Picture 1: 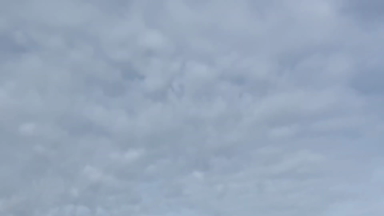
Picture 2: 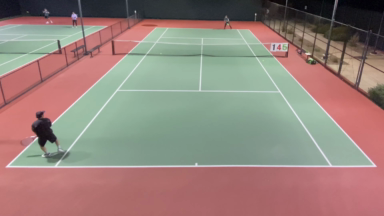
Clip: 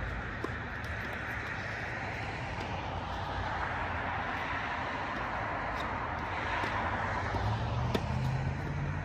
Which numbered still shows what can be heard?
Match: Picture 2